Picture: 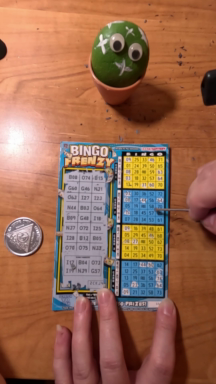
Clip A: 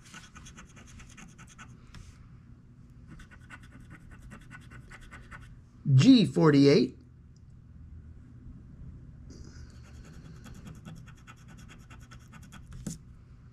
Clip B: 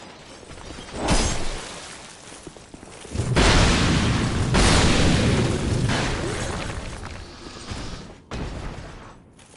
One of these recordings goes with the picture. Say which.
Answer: A